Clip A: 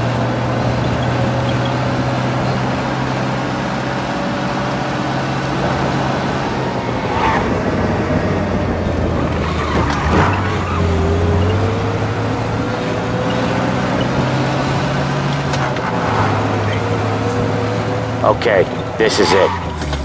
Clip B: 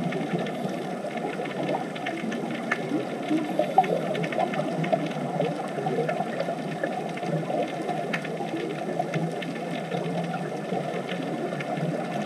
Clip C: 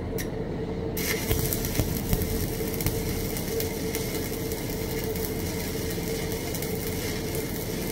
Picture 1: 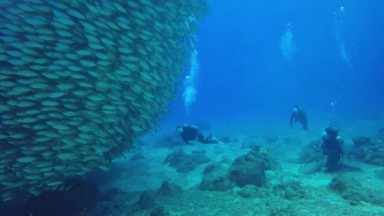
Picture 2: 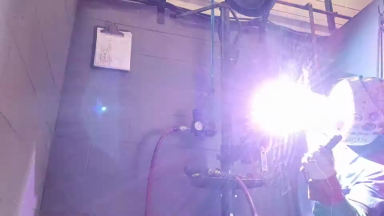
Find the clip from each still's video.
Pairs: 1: B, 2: C